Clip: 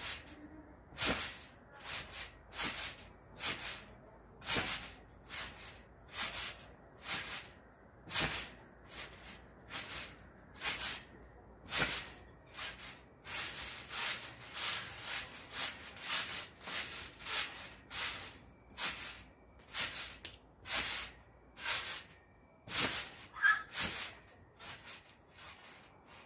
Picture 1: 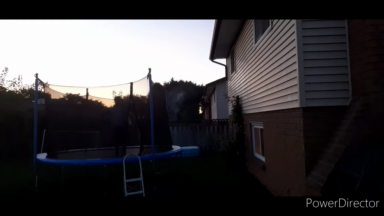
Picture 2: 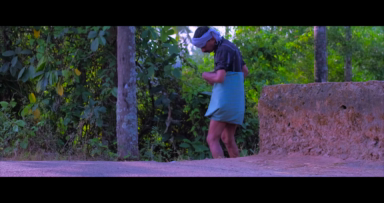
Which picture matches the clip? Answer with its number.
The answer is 1